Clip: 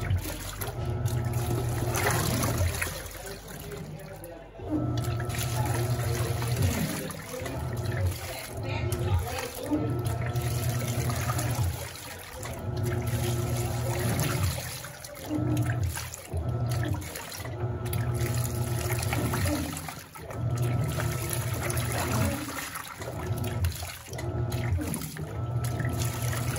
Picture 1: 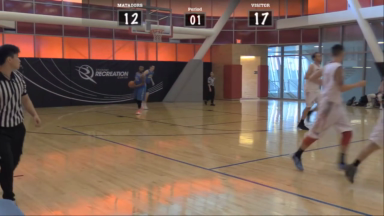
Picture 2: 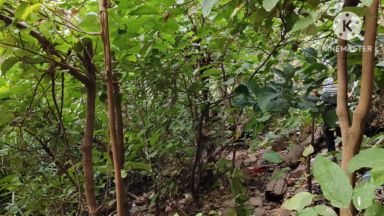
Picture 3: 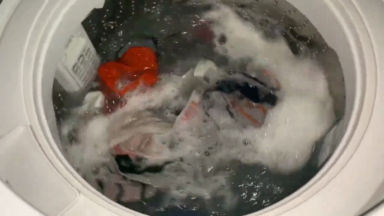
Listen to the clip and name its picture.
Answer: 3